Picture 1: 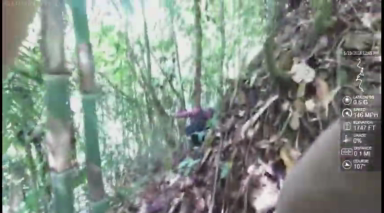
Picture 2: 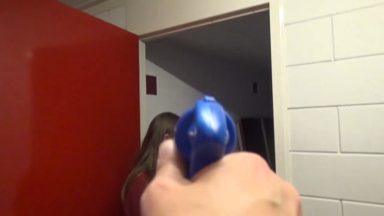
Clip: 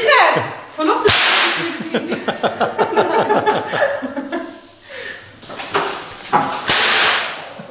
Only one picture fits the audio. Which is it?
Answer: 2